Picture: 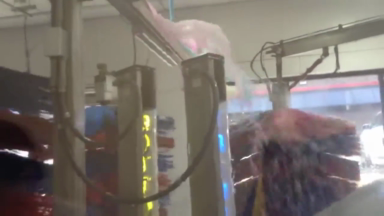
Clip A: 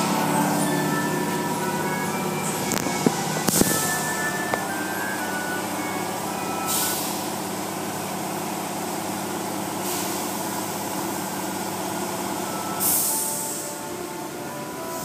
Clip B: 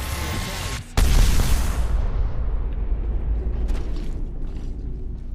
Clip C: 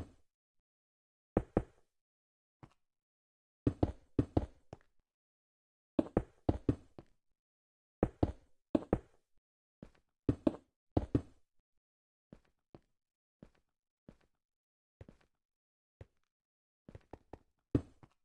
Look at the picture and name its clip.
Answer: A